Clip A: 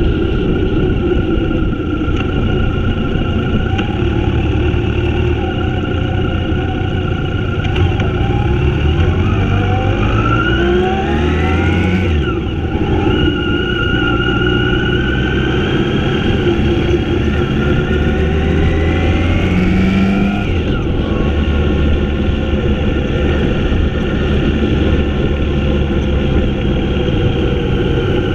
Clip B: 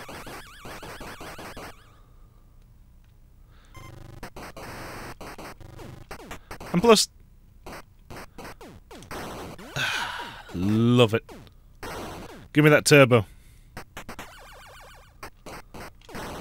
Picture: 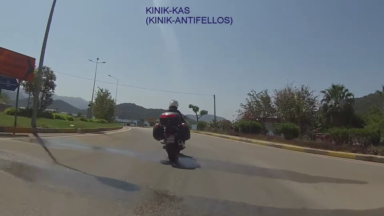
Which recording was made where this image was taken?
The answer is A